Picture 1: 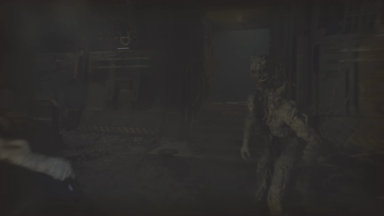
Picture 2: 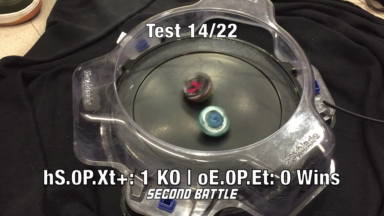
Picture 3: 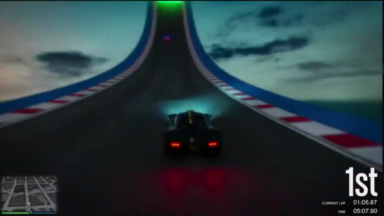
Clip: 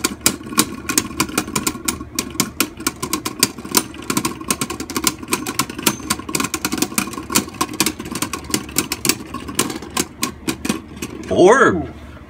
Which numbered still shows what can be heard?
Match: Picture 2